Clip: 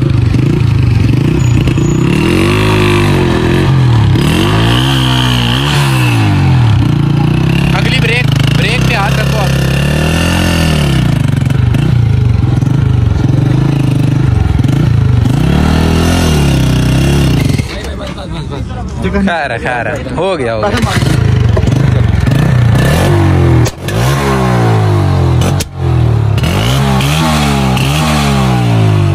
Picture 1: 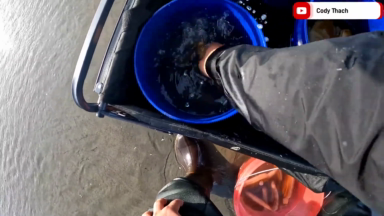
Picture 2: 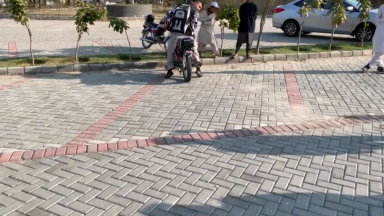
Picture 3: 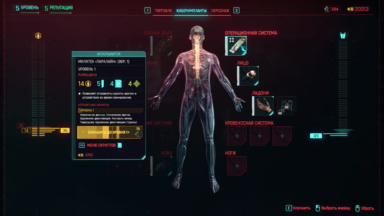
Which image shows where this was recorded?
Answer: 2